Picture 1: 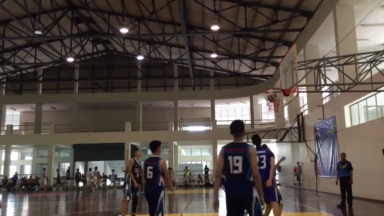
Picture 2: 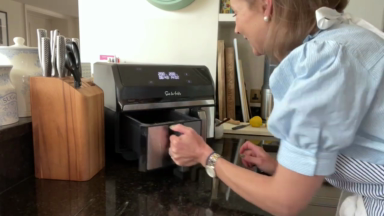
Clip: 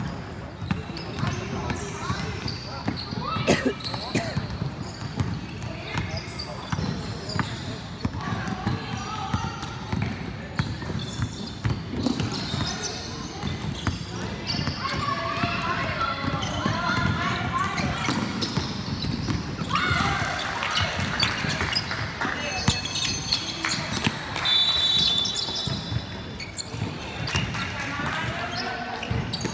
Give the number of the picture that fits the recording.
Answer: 1